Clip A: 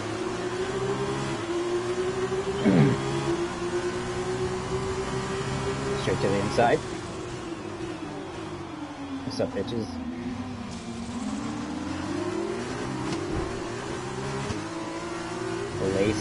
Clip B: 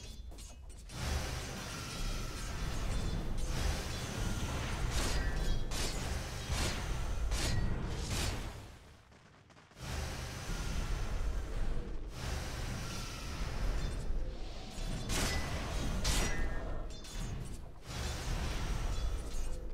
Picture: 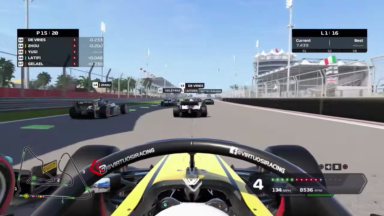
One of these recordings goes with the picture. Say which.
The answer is A